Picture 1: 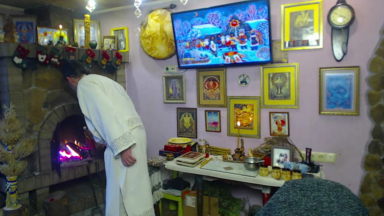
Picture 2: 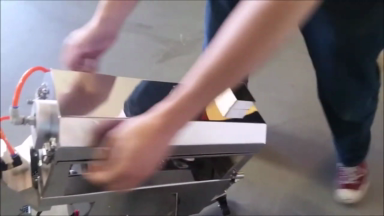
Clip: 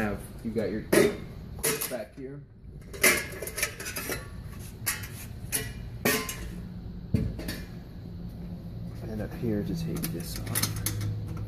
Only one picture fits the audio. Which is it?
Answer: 2